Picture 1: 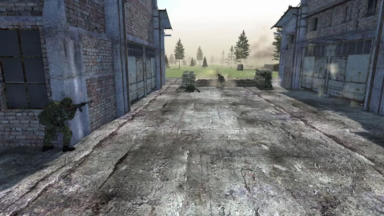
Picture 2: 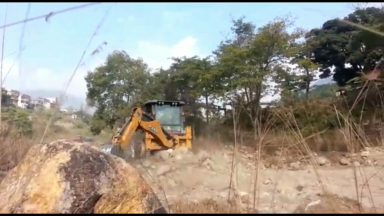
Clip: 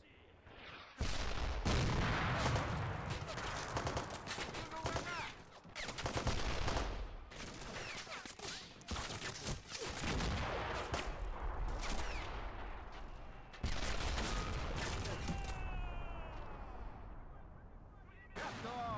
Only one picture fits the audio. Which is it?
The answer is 1